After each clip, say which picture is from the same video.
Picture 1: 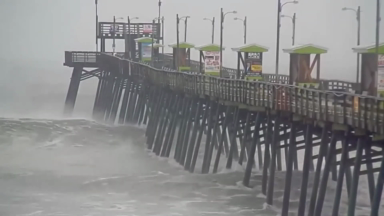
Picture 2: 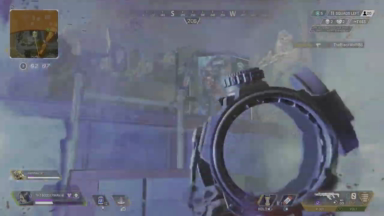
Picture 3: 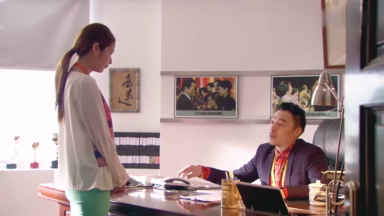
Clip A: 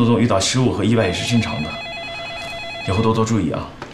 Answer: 3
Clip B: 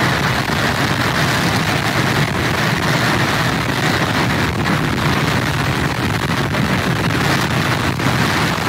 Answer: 1